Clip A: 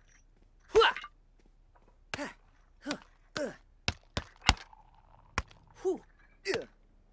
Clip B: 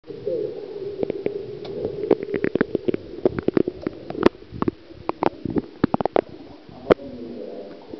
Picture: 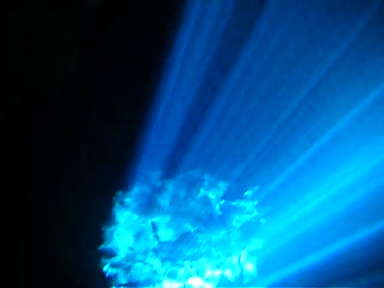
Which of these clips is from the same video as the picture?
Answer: B